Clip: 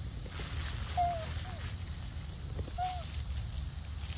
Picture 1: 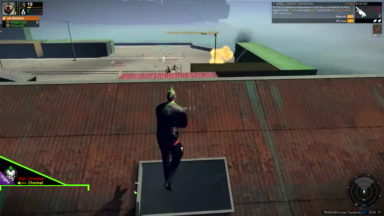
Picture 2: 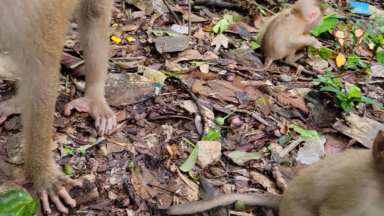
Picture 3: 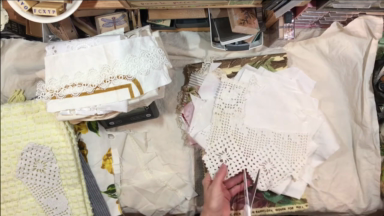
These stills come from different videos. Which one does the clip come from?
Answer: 2